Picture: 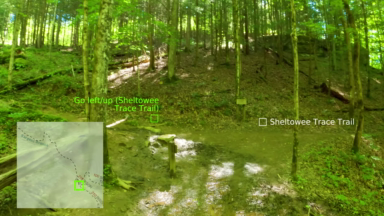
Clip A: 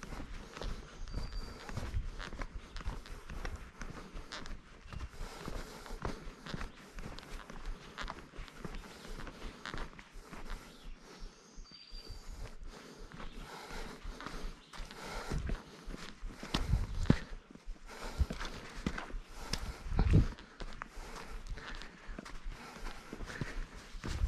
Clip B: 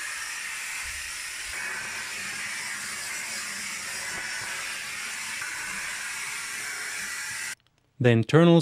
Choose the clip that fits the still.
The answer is A